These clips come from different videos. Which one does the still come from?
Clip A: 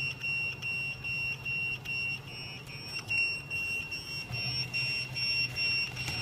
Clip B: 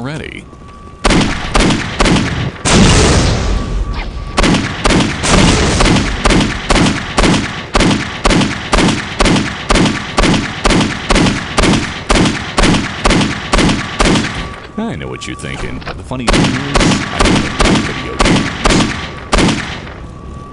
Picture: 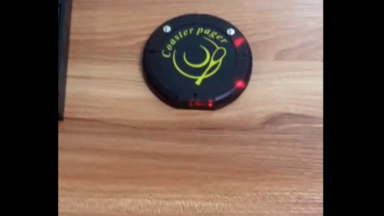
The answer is A